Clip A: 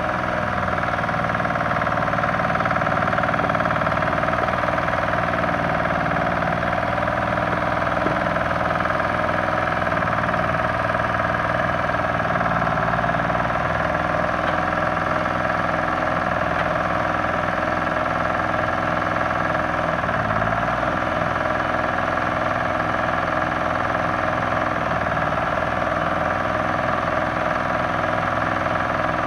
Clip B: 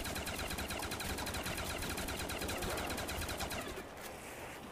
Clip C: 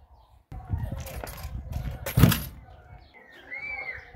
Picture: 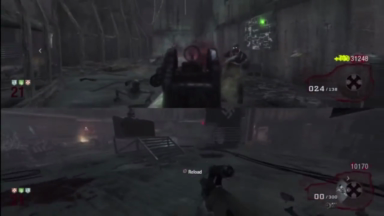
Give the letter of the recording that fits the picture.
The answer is B